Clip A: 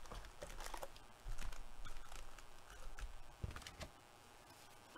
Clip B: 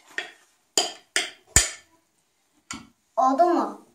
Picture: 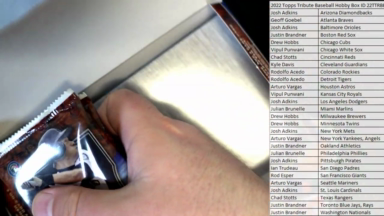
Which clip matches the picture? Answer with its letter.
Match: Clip A